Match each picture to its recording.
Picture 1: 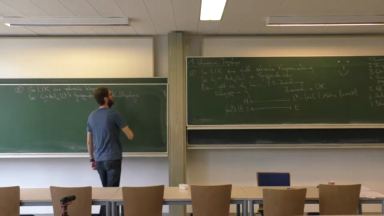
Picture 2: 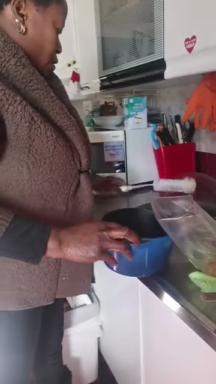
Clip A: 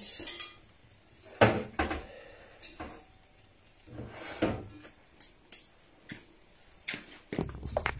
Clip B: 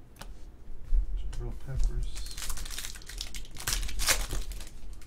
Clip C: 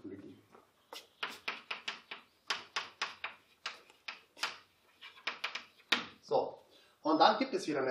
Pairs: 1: C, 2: A